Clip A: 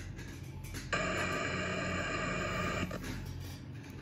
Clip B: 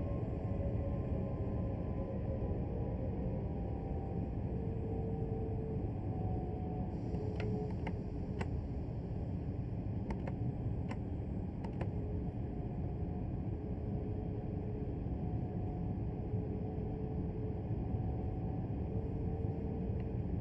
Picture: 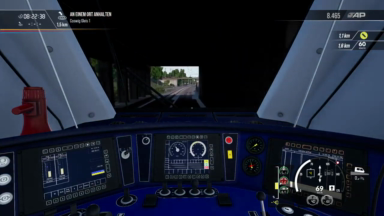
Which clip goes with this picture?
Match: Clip B